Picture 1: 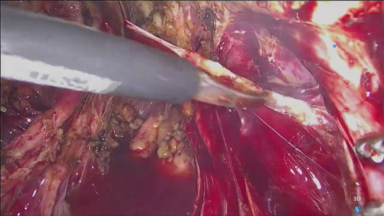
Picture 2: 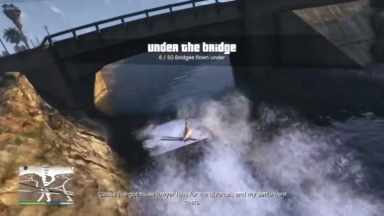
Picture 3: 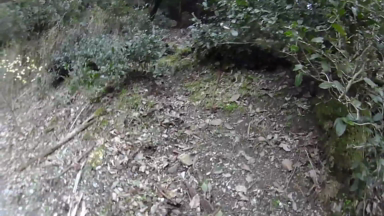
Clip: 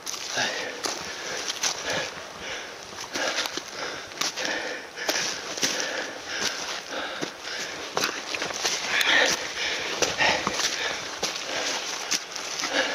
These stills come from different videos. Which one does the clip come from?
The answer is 3